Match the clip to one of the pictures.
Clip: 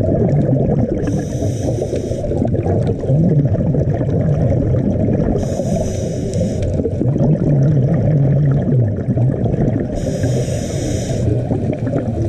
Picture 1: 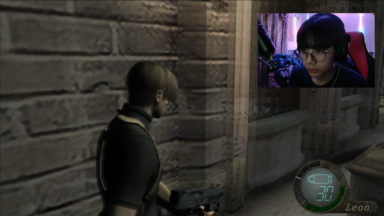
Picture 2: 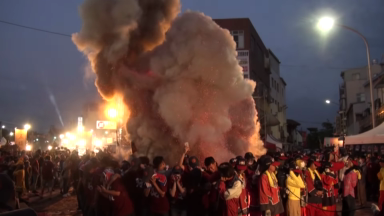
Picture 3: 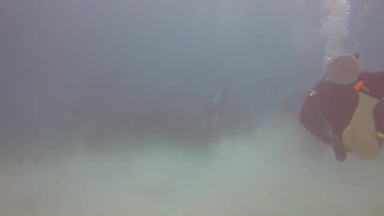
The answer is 3